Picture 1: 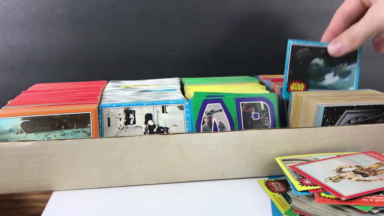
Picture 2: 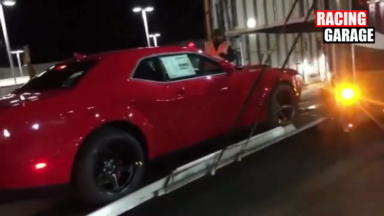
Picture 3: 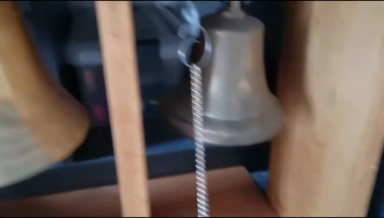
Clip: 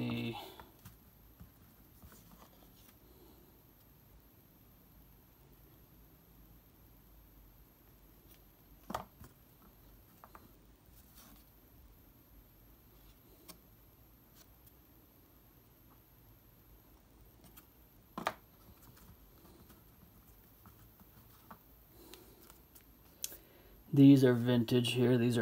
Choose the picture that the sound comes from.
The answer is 1